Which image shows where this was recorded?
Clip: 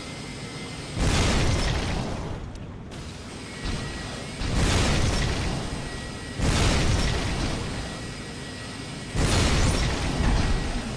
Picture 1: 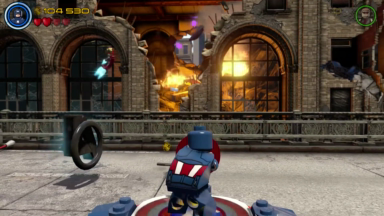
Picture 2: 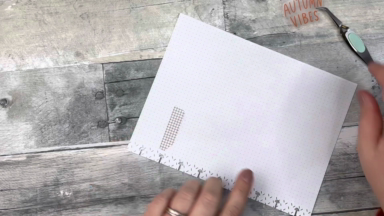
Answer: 1